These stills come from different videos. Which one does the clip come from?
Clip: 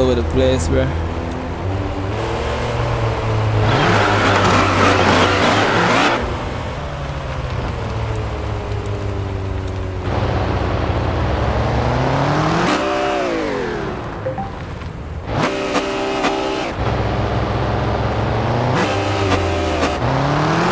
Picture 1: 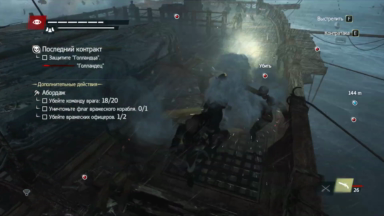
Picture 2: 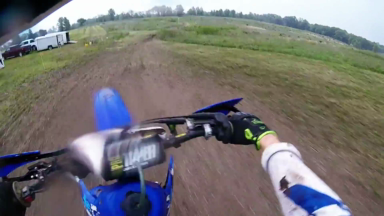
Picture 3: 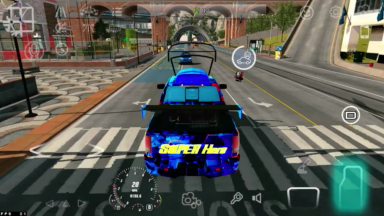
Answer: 3